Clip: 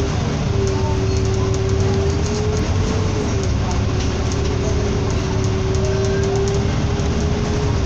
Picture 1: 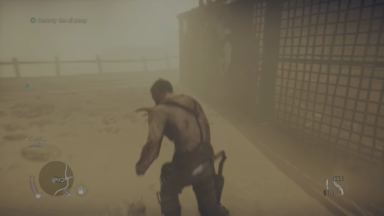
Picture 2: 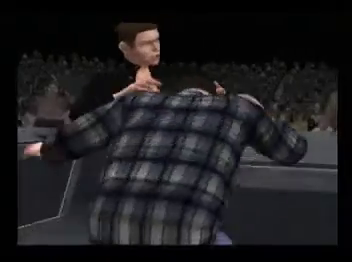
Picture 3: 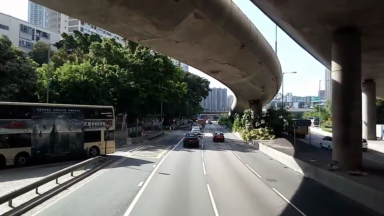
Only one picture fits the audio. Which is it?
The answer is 3